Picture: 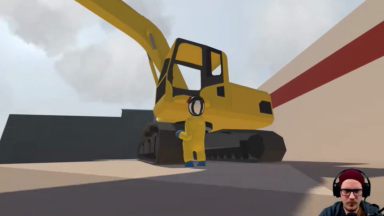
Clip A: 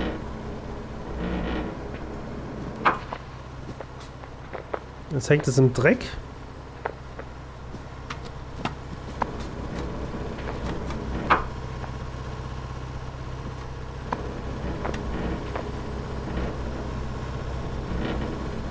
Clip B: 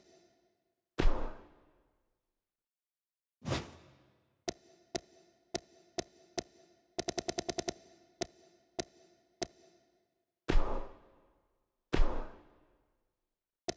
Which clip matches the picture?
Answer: A